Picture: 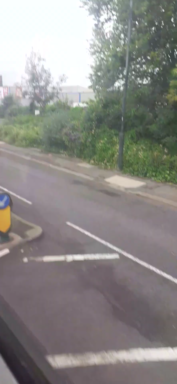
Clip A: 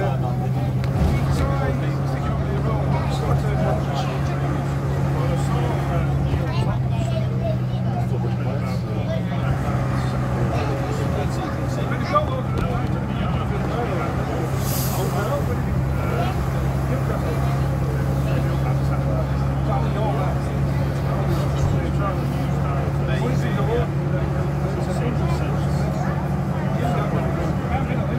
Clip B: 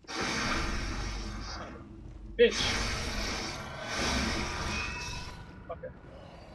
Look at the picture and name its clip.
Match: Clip A